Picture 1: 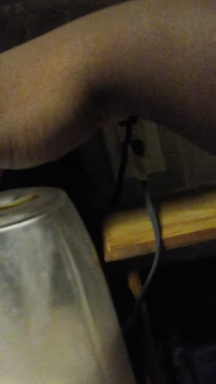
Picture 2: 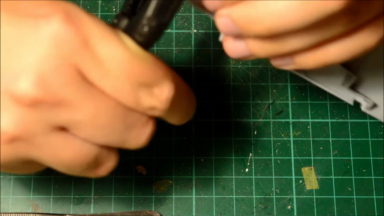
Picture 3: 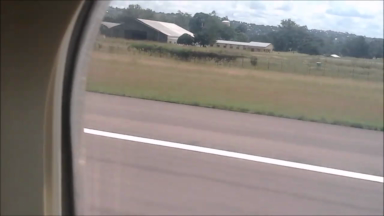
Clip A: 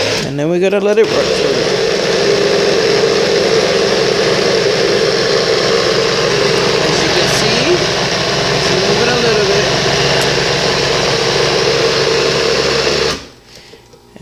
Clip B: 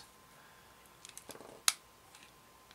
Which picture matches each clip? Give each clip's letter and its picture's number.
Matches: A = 1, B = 2